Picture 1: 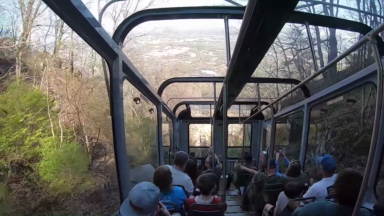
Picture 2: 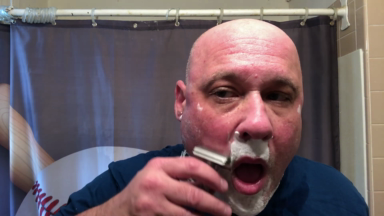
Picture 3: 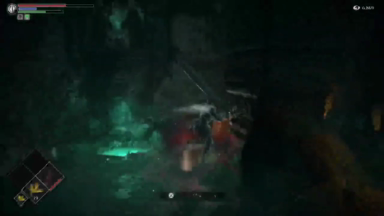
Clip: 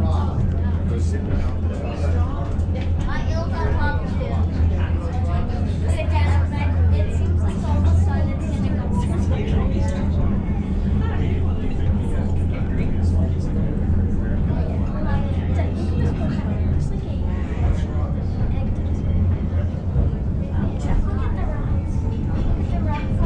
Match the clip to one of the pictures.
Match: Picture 1